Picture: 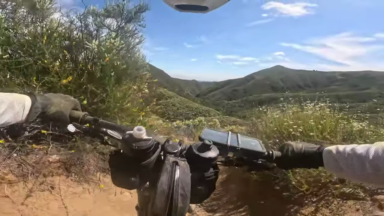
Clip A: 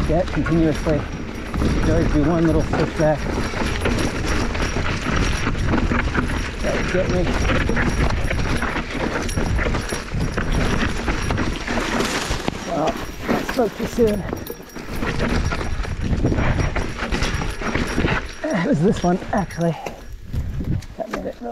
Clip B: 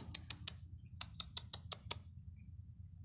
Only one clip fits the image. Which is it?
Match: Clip A